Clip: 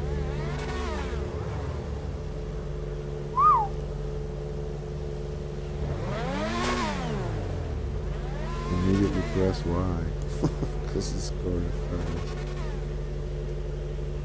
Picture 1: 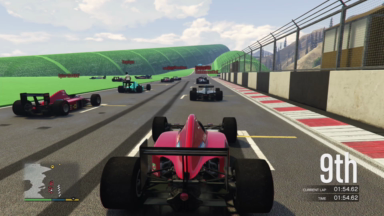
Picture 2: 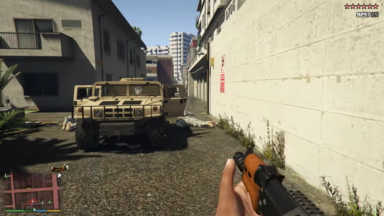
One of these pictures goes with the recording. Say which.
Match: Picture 1